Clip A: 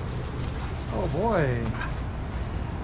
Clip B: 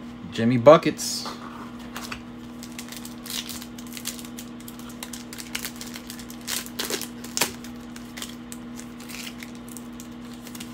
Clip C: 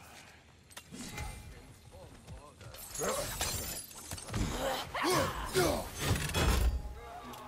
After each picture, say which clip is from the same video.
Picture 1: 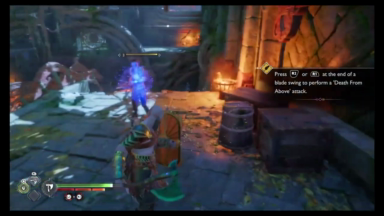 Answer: C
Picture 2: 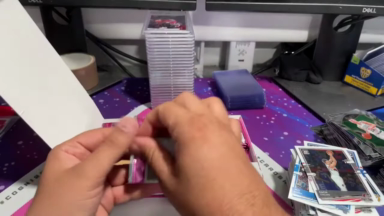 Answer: B